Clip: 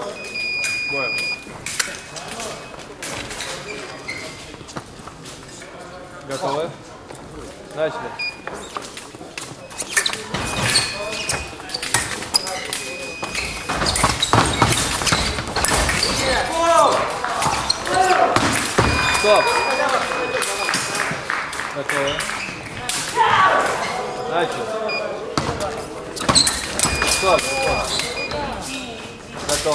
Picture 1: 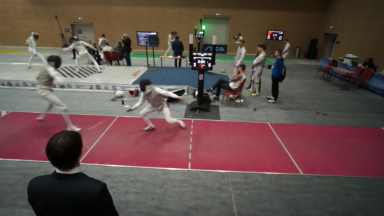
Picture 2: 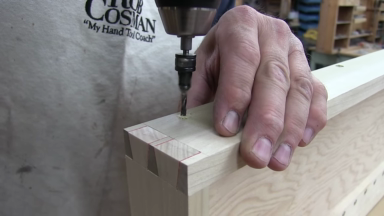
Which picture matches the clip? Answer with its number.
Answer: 1